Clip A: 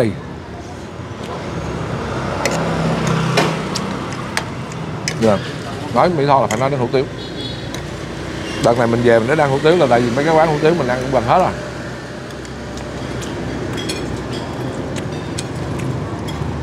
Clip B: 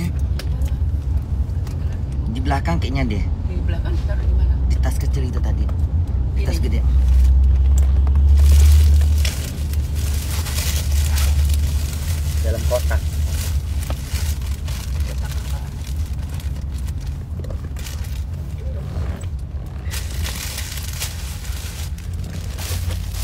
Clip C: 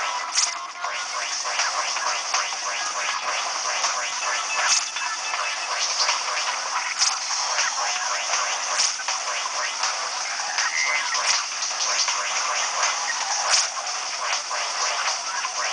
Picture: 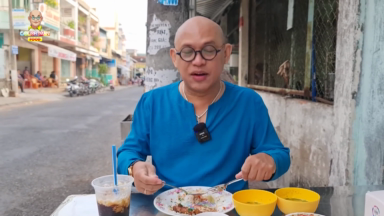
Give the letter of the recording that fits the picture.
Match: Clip A